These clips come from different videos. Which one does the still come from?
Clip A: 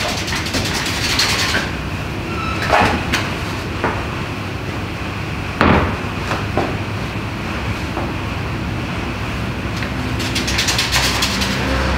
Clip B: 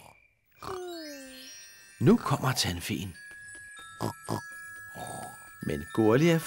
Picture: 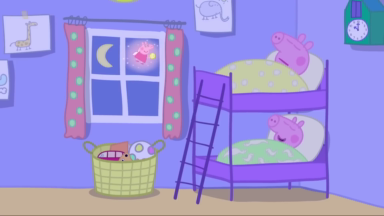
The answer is B